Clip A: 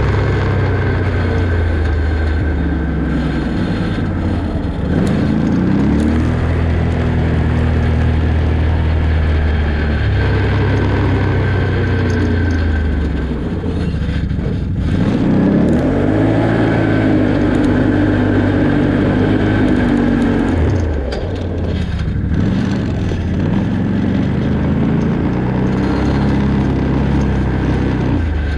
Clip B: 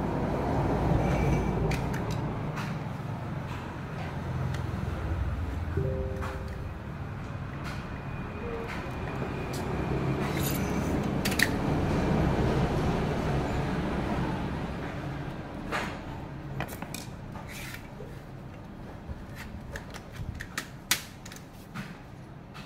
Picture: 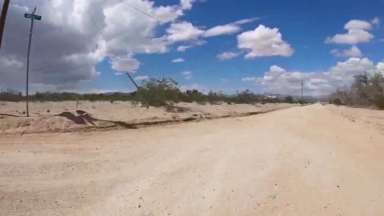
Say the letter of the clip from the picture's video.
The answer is A